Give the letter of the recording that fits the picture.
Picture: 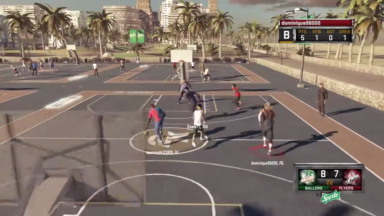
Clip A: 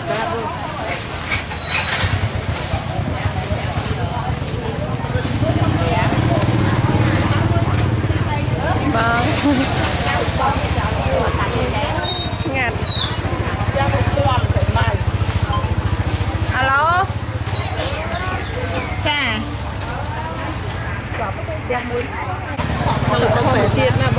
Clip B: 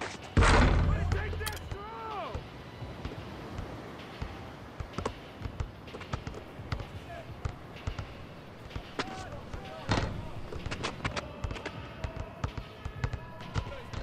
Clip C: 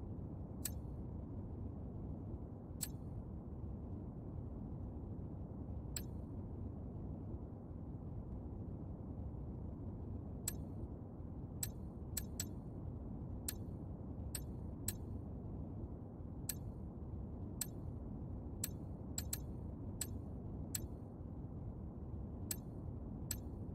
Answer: B